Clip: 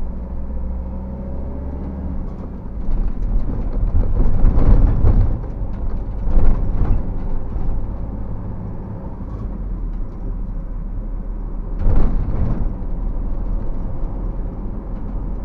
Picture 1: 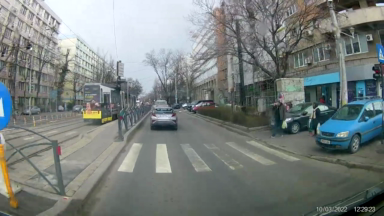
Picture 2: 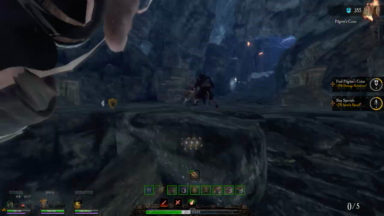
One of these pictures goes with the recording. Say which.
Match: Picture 1